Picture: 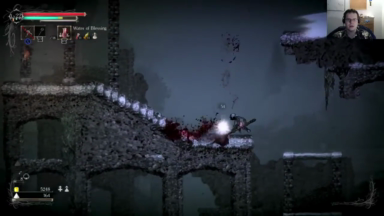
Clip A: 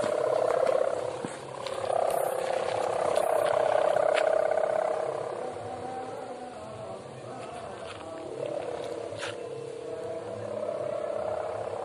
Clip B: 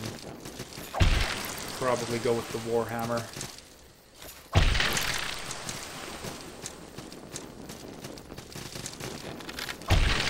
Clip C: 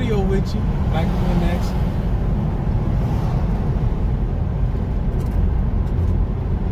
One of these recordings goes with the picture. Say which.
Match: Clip B